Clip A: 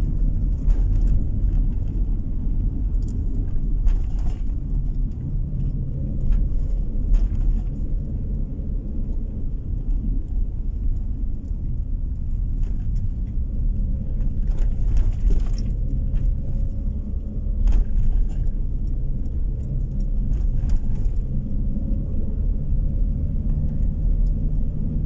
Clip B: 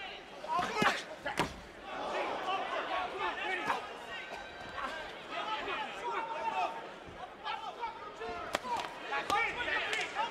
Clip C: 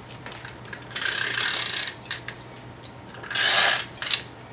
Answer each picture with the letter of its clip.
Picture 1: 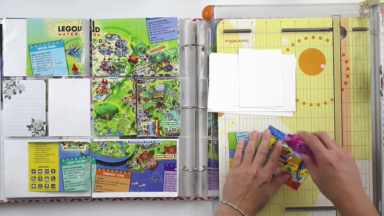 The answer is C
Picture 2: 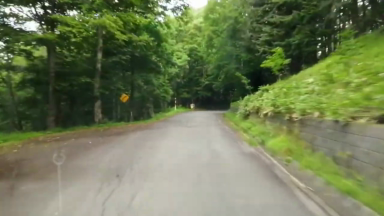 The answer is A